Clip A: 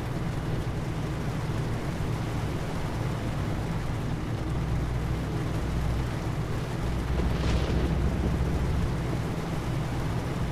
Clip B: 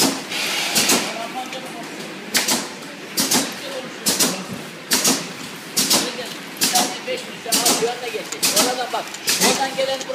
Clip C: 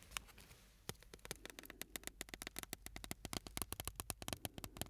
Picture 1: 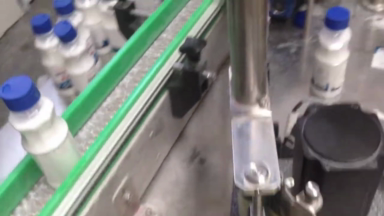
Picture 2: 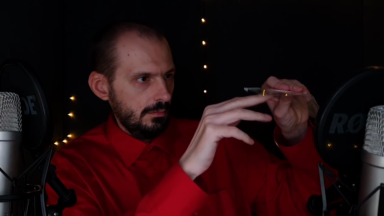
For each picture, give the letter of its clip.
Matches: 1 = B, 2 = C